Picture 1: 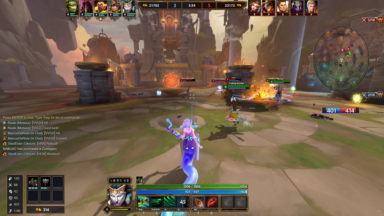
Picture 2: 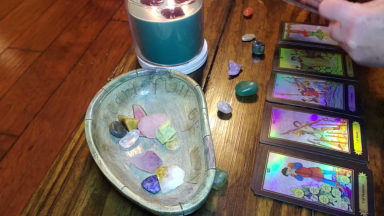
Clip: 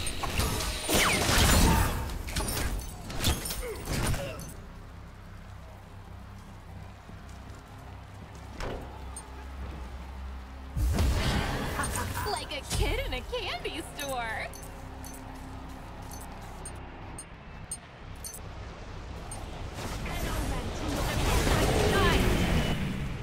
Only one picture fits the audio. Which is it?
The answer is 1